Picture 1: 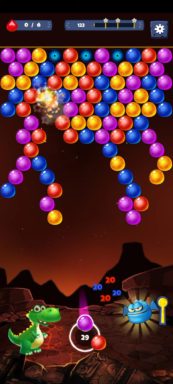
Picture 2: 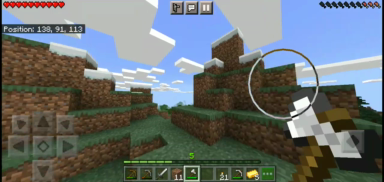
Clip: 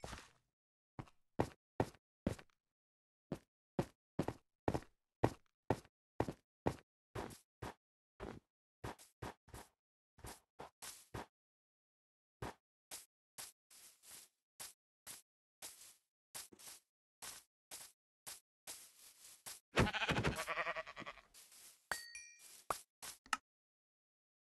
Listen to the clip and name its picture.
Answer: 2